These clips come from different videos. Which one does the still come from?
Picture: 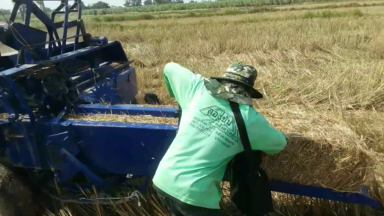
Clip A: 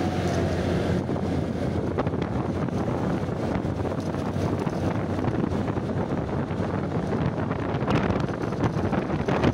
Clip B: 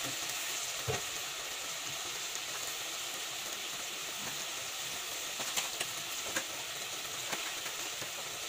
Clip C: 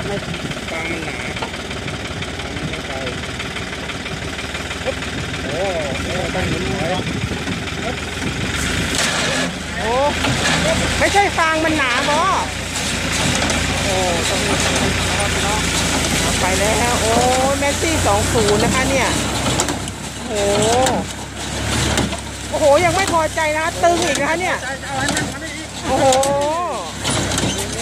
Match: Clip C